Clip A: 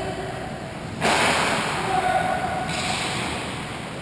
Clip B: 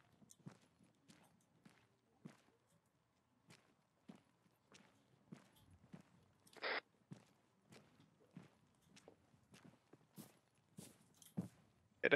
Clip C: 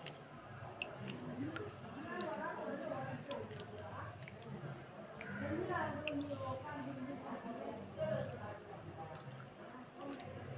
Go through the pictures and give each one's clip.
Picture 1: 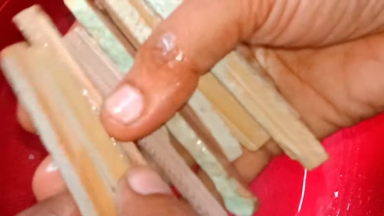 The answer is C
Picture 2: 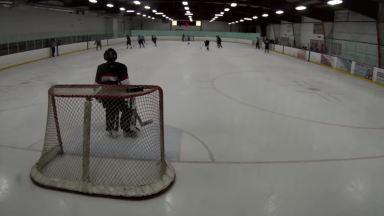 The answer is A